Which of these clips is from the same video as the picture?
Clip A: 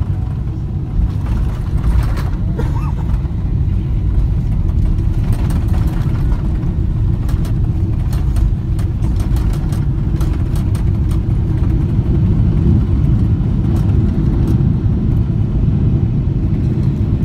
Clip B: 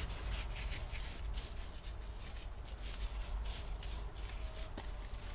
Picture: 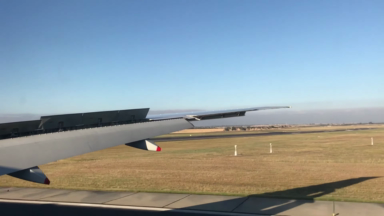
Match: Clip A